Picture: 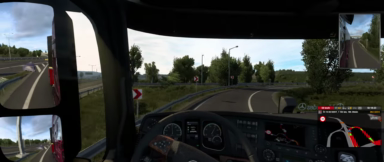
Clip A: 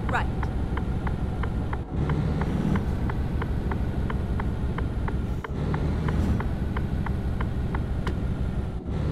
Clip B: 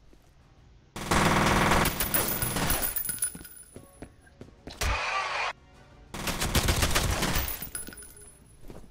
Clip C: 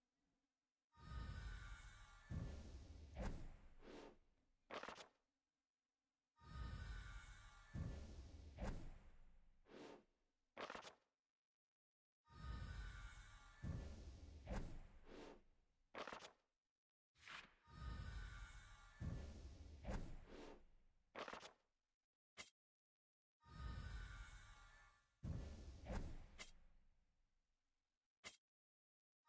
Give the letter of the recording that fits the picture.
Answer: A